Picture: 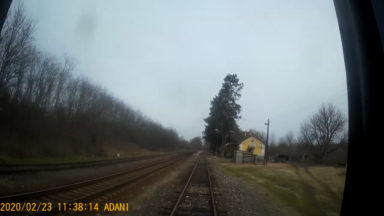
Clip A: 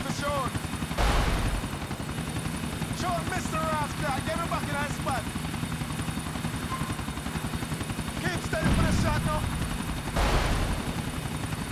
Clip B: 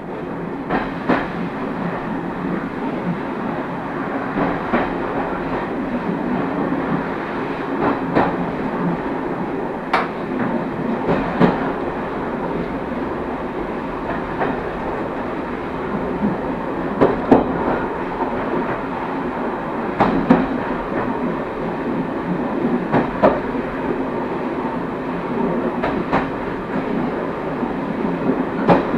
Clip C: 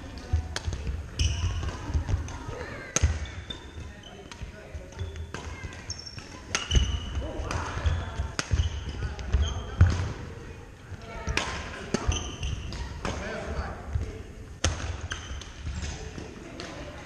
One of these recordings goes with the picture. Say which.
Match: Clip B